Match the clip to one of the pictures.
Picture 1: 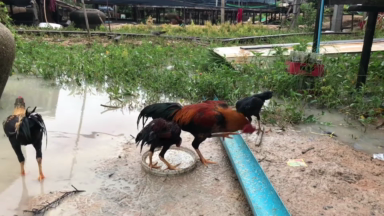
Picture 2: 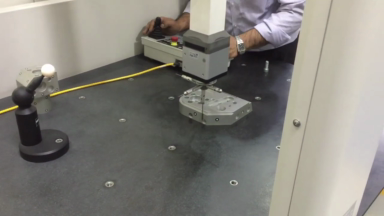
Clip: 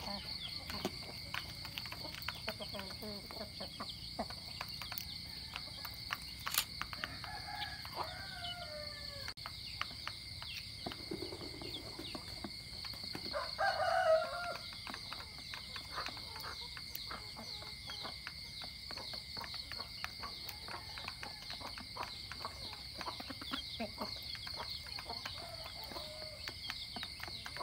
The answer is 1